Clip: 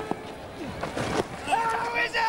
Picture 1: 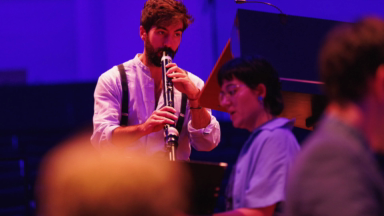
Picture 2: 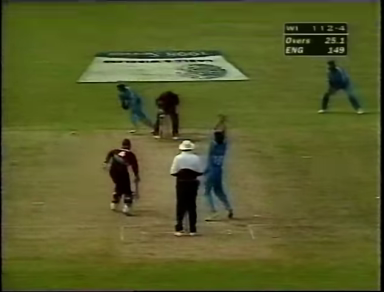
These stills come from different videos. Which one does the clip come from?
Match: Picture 2